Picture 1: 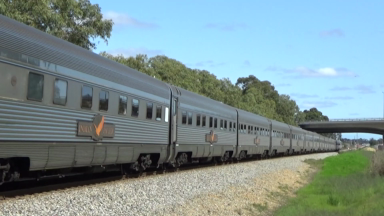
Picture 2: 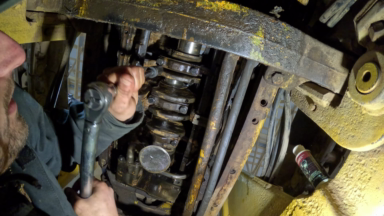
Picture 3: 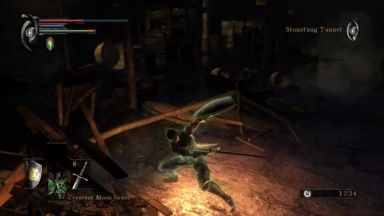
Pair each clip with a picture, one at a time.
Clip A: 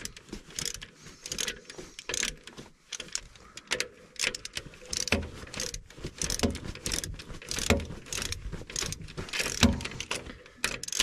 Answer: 2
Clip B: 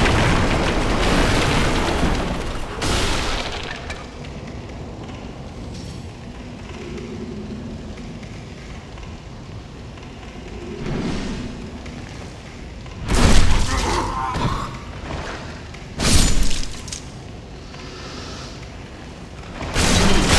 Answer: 3